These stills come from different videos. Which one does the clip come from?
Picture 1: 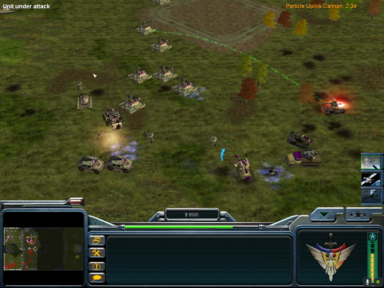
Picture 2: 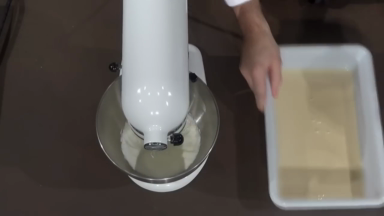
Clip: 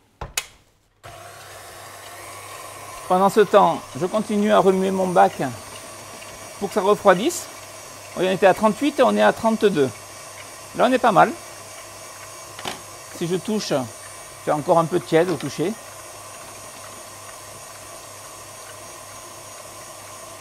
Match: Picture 2